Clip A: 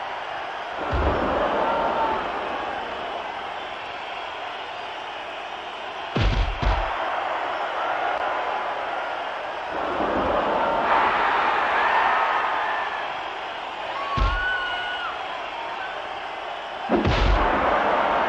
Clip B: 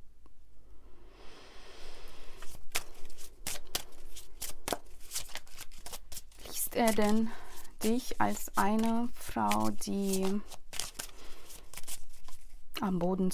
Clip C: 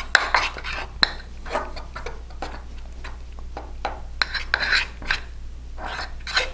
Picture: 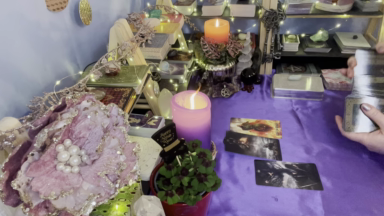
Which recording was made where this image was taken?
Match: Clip B